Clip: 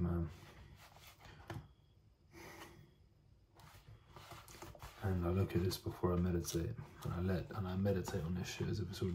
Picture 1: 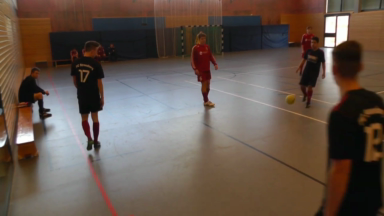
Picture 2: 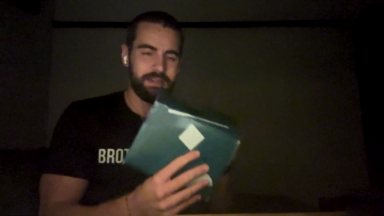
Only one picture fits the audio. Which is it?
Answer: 2